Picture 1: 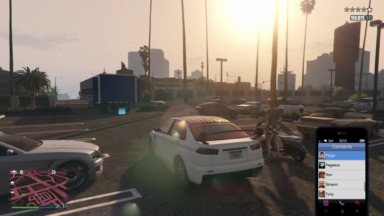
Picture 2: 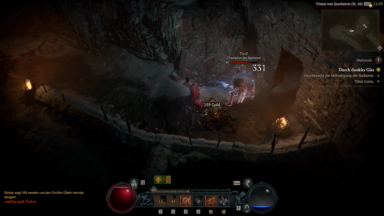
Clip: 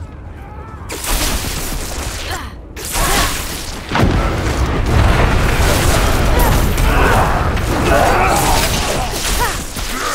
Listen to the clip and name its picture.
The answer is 2